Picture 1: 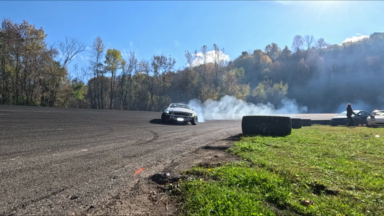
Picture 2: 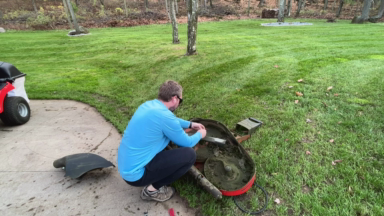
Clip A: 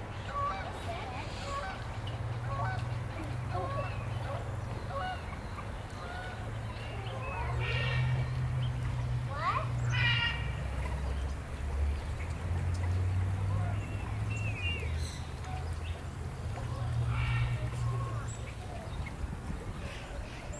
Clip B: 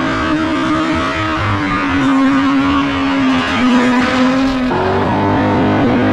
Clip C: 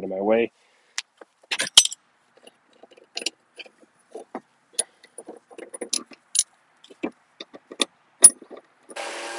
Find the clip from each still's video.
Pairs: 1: B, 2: C